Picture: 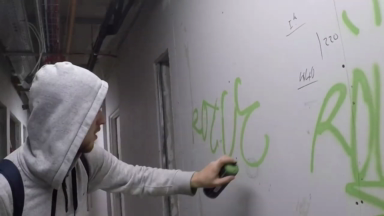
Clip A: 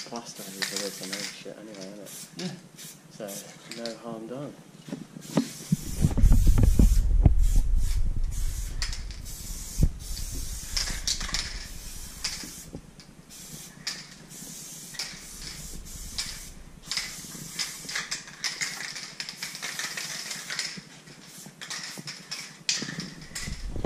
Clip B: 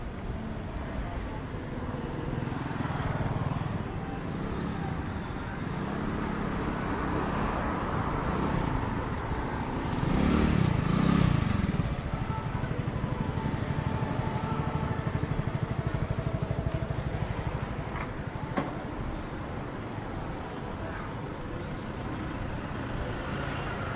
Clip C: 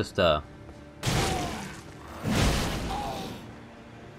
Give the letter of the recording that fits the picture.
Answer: A